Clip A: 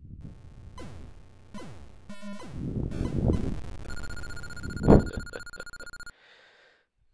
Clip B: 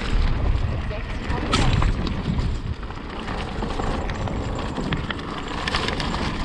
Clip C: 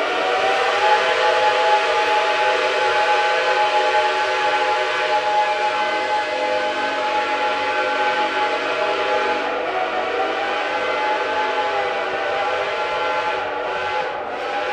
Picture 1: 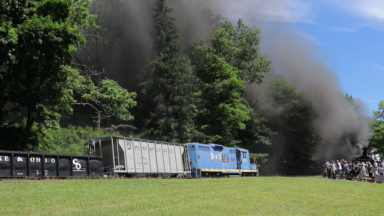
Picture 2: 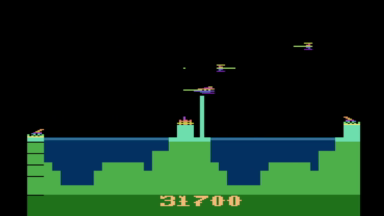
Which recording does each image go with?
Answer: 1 C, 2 A